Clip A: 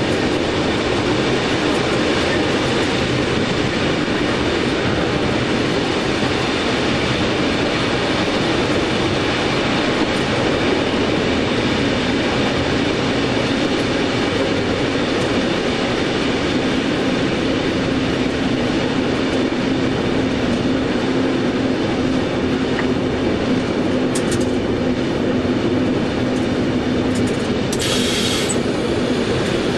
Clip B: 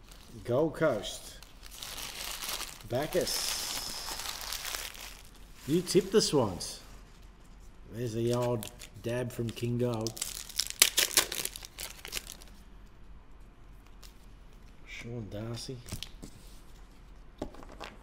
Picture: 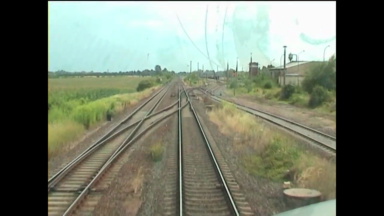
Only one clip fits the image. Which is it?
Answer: A